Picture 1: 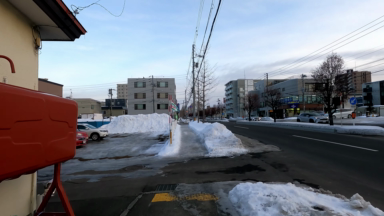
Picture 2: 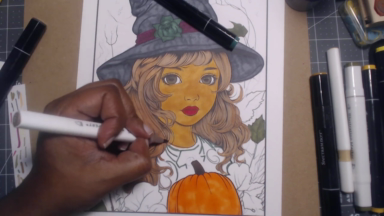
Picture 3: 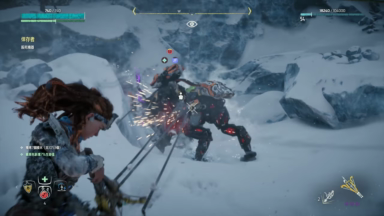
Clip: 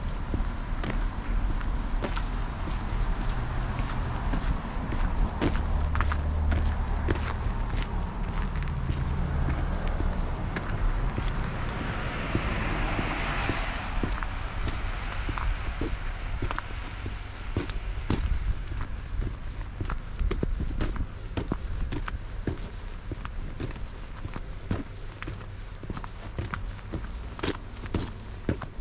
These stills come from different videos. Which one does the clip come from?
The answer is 1